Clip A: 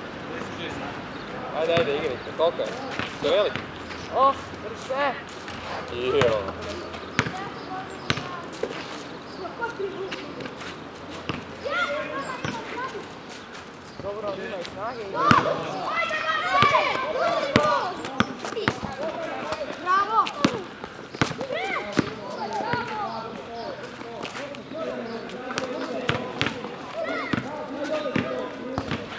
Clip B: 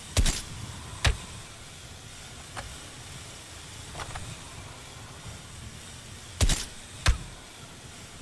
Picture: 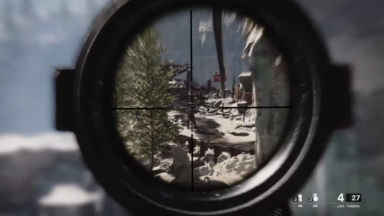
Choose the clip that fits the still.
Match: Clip B